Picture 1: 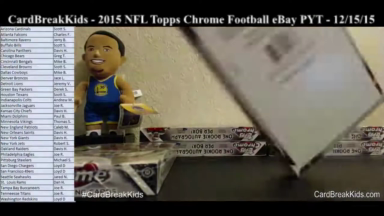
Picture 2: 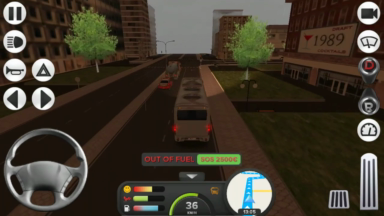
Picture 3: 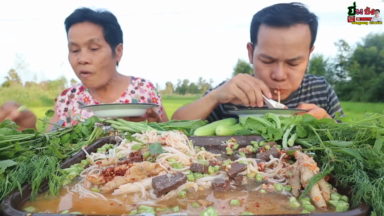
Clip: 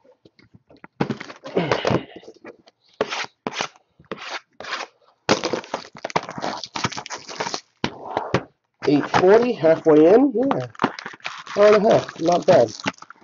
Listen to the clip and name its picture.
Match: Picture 1